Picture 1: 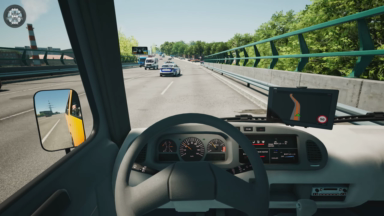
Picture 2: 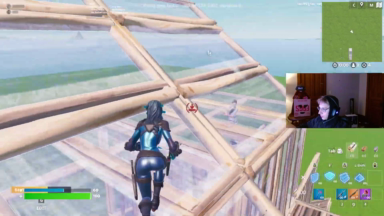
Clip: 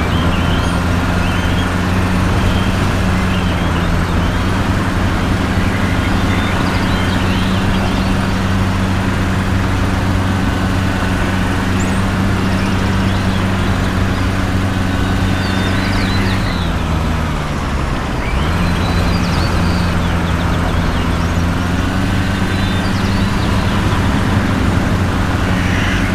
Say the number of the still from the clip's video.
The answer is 1